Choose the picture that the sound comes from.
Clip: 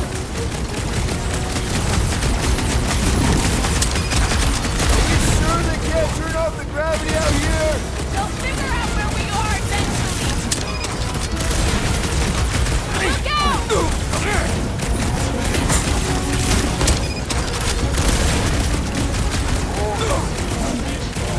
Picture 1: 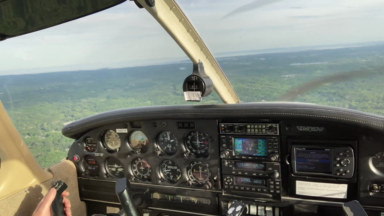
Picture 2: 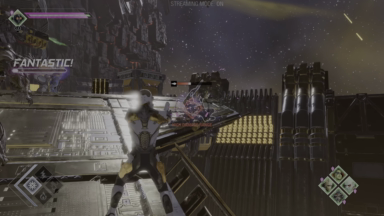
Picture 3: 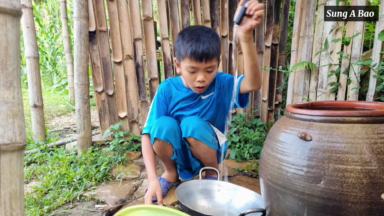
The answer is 2